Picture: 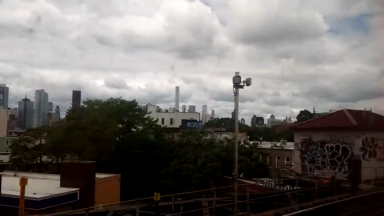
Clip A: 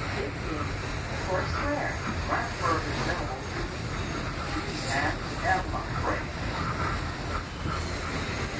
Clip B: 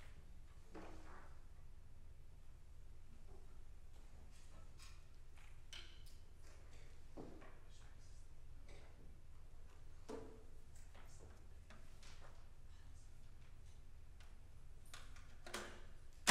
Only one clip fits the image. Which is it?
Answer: A